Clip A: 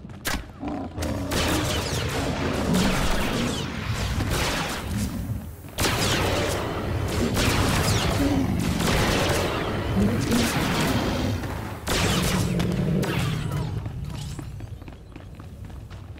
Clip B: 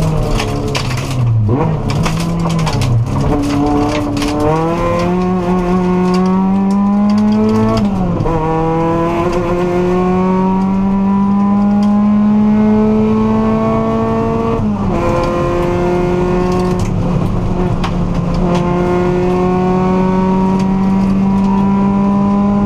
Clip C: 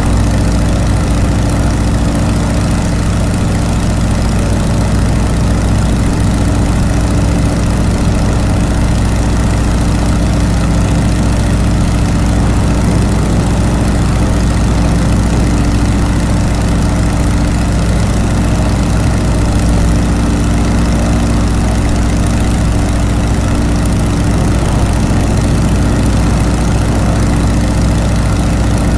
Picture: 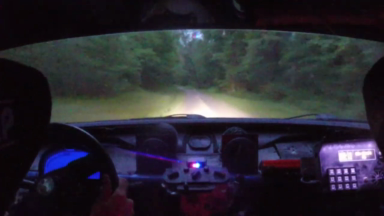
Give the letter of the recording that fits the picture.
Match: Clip B